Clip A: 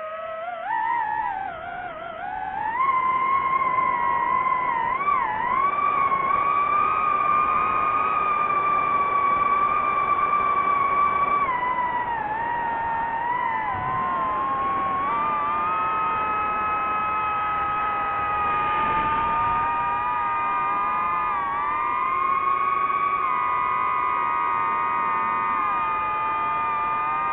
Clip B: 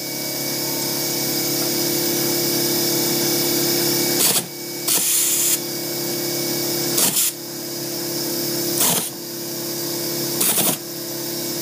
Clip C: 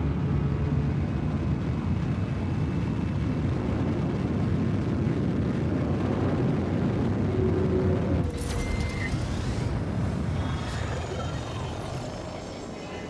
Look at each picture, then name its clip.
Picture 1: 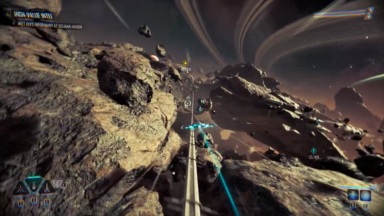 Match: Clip C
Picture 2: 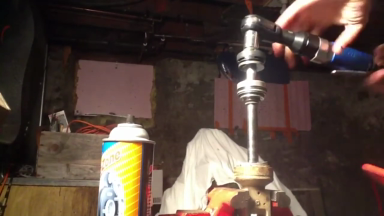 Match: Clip B